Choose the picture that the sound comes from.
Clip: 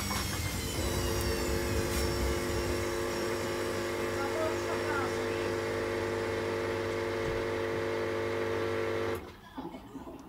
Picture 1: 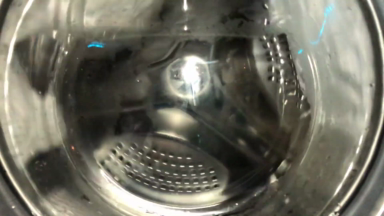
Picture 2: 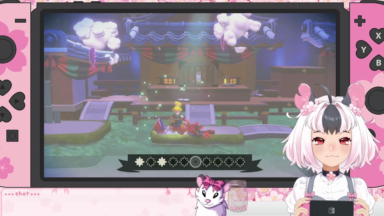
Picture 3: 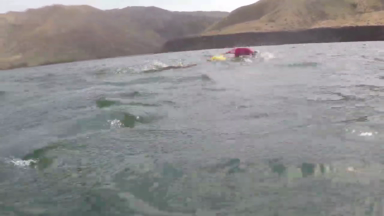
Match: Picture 1